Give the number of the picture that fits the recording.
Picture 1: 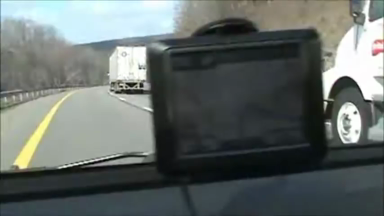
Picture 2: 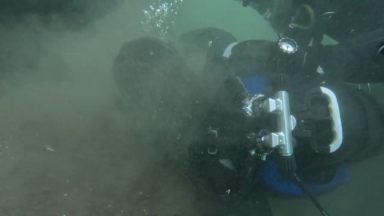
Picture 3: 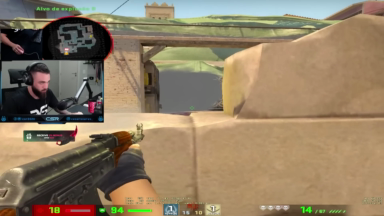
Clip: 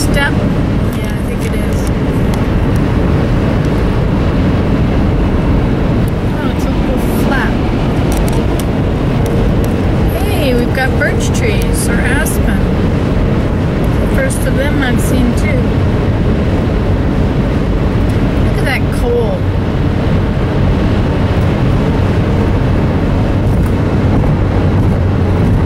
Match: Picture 1